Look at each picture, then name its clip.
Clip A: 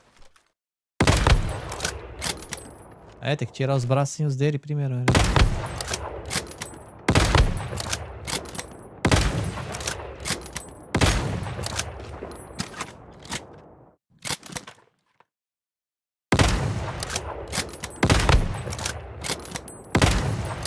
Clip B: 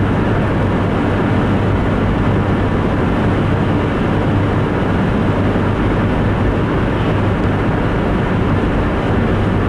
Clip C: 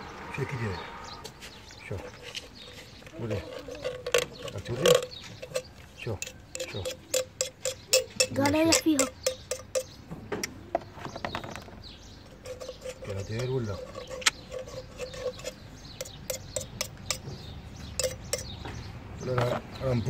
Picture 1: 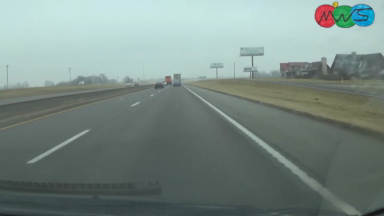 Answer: B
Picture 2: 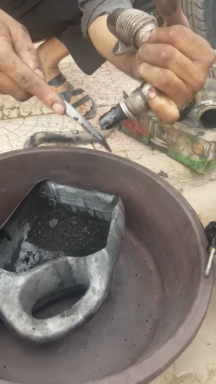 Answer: C